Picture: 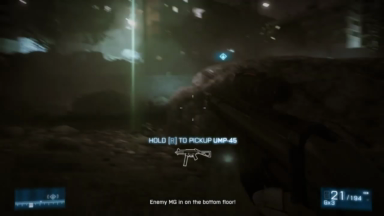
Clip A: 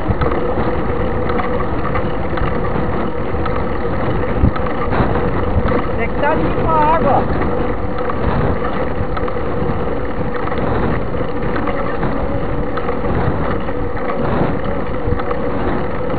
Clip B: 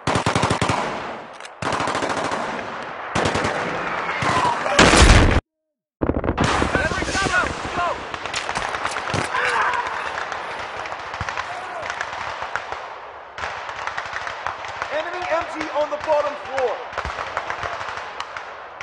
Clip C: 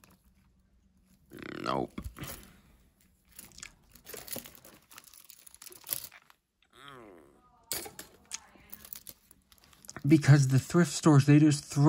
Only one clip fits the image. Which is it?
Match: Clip B